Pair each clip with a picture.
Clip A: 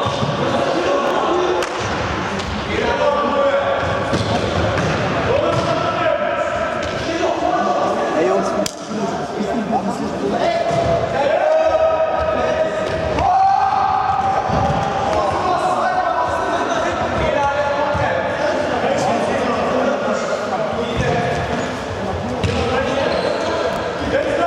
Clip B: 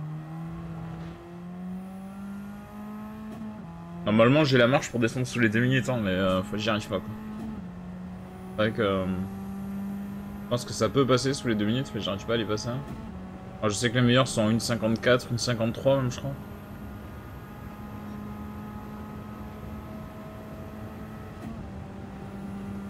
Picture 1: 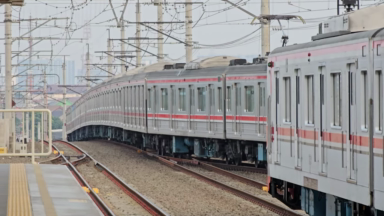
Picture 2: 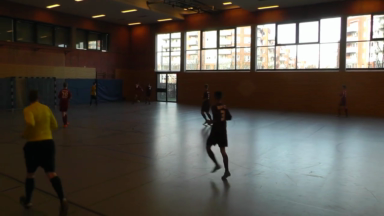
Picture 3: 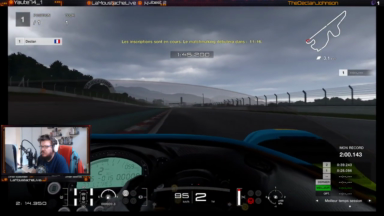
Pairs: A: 2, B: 3